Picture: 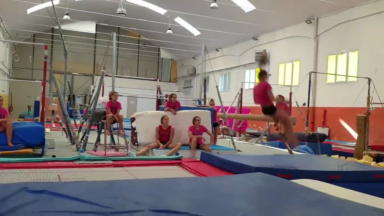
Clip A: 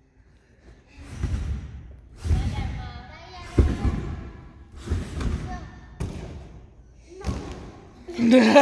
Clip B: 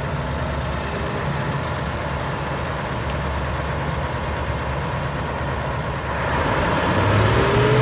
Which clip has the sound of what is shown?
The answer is A